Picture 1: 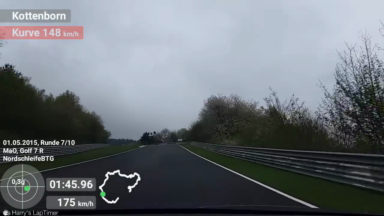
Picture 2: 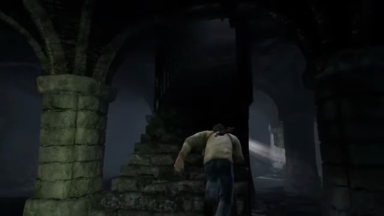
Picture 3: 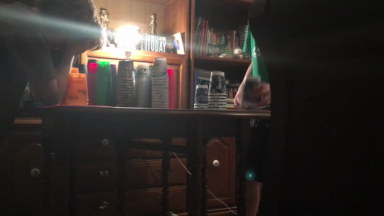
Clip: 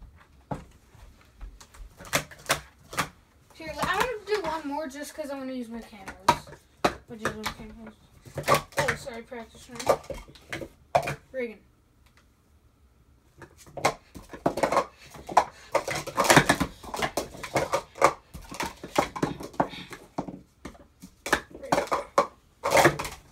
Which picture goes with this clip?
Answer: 3